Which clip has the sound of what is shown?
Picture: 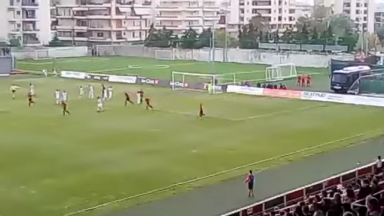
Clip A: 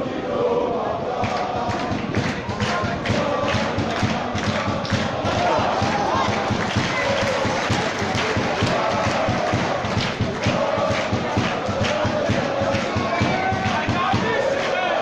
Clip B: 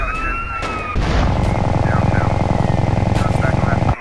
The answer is A